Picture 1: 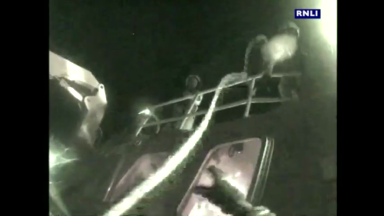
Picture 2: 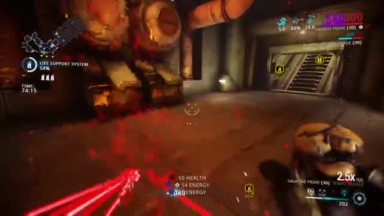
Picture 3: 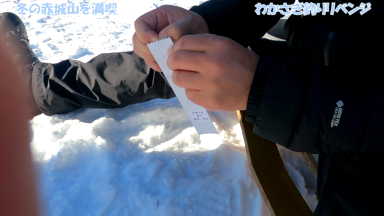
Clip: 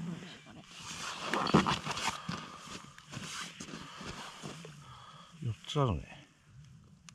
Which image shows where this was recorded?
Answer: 3